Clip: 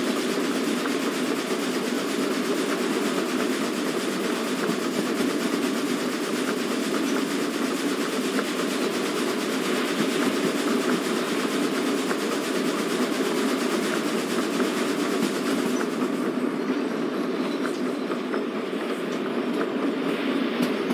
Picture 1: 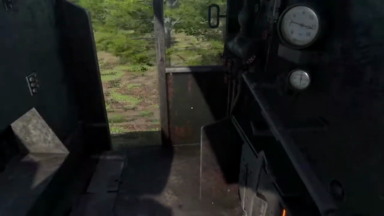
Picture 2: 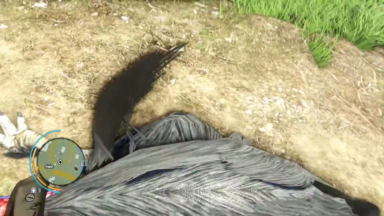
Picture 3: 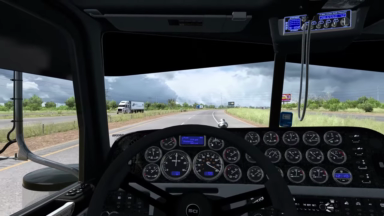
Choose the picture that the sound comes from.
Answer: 1